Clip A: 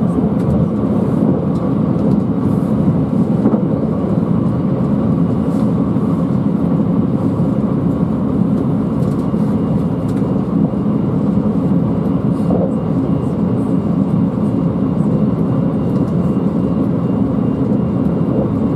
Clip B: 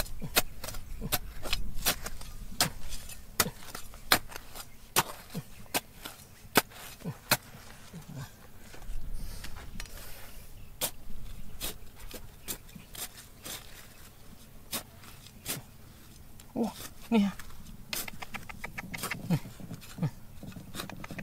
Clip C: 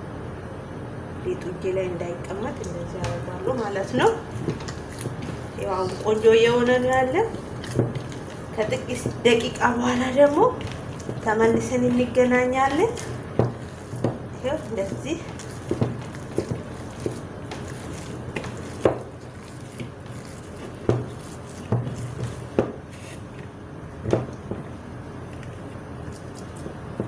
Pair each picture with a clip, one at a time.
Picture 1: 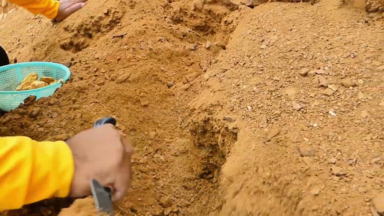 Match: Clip B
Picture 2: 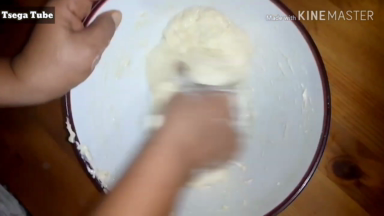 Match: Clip C